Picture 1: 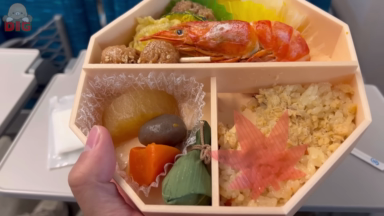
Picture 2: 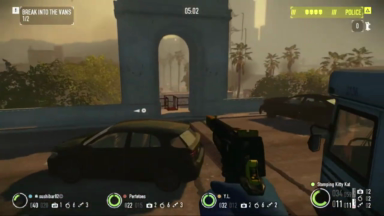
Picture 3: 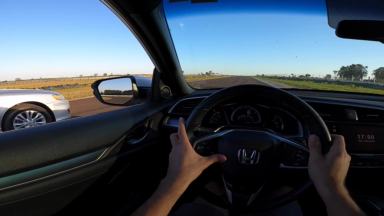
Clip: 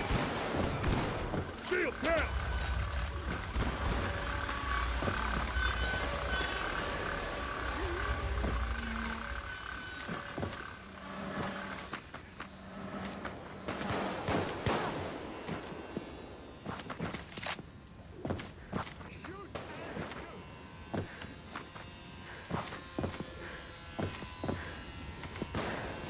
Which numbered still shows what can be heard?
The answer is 2